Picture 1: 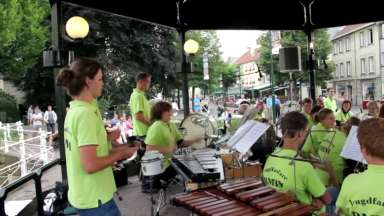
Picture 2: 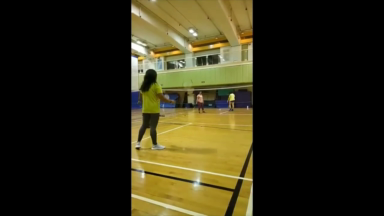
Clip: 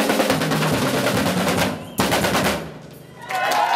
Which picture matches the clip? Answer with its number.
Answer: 1